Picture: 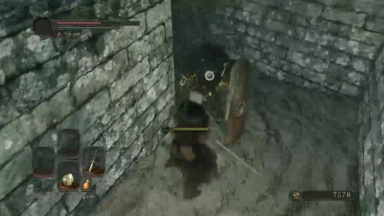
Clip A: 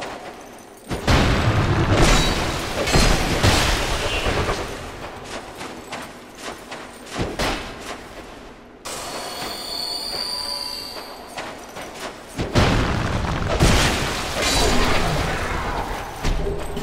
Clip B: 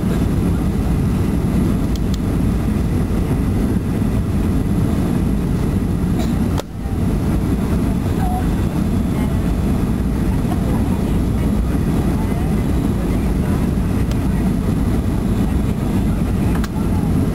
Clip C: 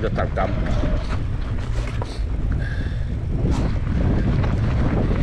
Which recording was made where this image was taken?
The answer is A